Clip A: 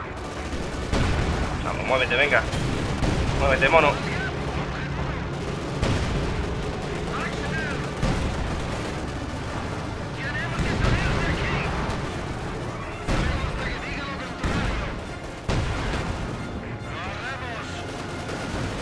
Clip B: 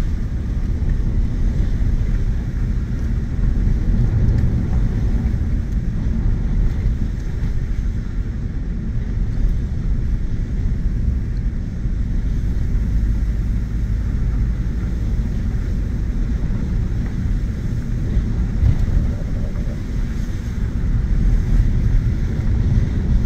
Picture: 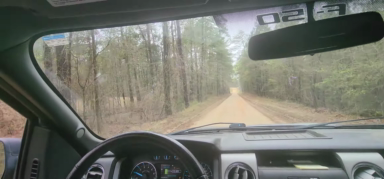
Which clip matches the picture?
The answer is B